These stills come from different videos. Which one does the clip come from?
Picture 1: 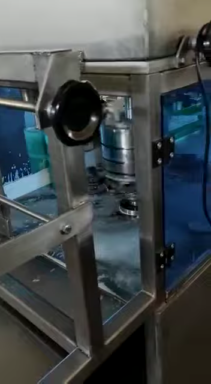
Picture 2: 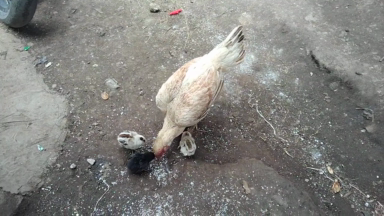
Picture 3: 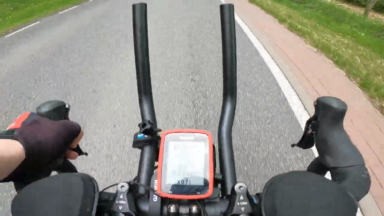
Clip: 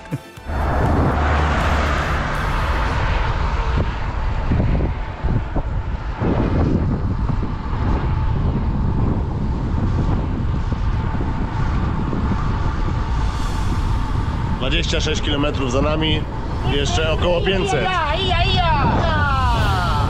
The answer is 3